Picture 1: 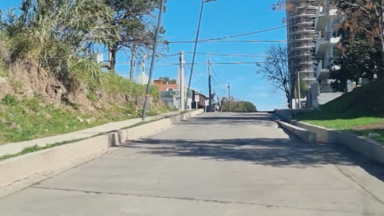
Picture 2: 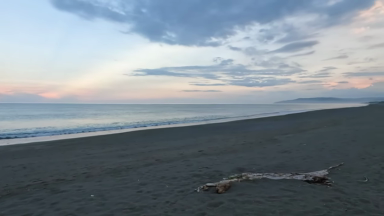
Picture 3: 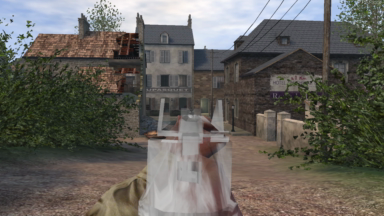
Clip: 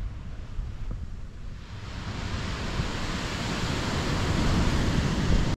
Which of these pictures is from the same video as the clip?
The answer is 2